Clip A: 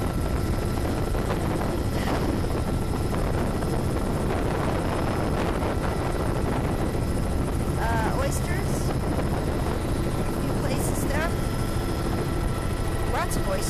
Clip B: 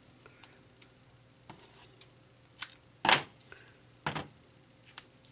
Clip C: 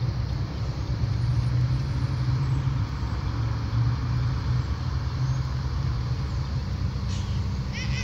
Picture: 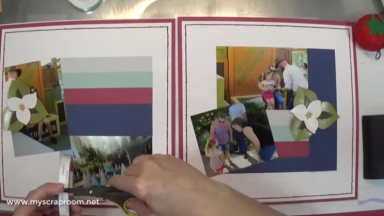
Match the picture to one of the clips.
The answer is B